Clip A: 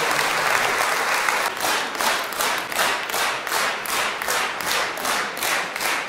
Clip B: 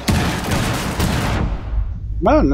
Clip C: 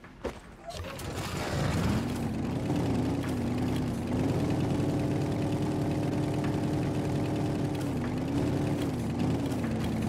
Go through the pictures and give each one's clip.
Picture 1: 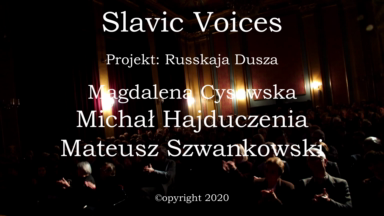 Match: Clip A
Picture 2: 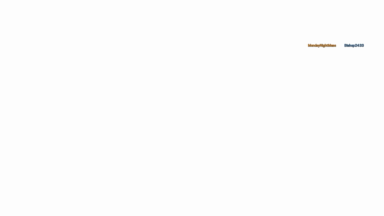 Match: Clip B